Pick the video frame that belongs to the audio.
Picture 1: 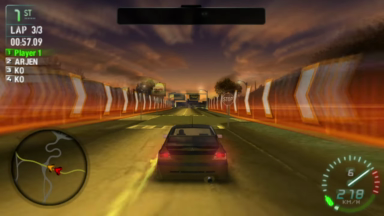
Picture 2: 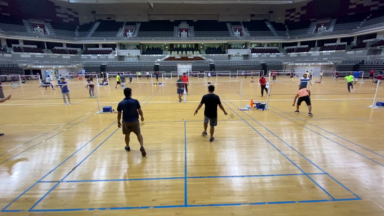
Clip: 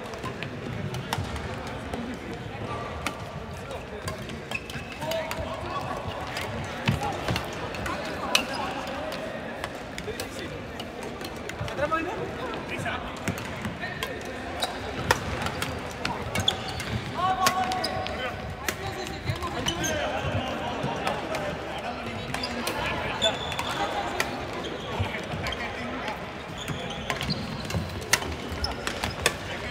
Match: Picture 2